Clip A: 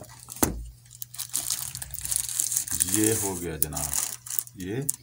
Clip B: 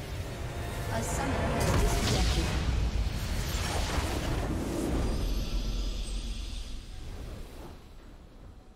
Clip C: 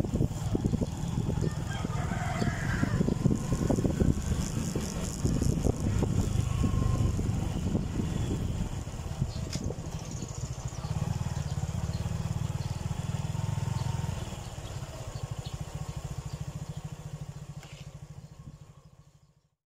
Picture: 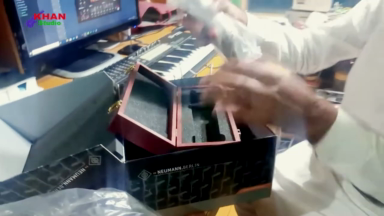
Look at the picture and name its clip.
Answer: A